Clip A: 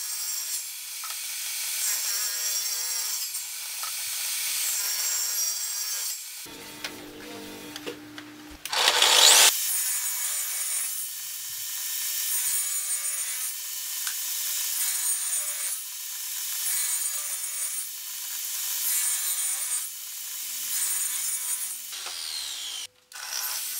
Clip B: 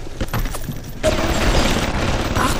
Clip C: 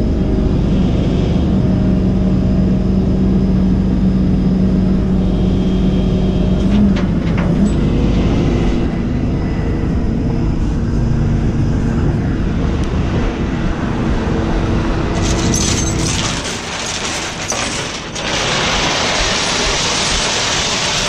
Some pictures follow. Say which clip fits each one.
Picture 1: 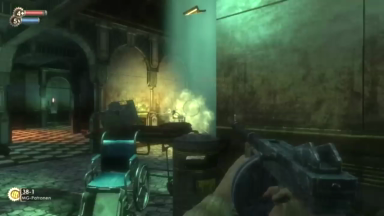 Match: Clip B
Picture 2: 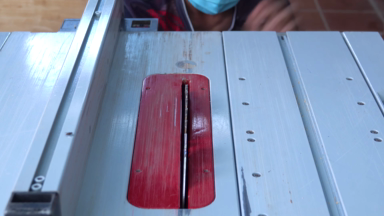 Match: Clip A